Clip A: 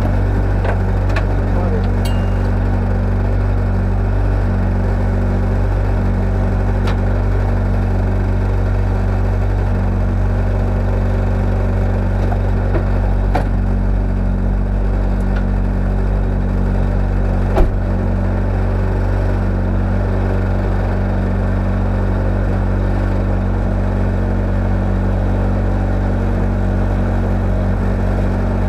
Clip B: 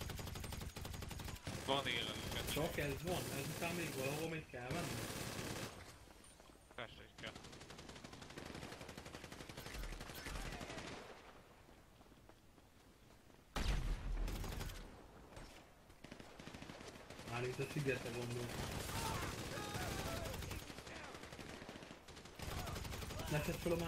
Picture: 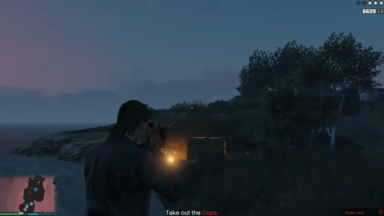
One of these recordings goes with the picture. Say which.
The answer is B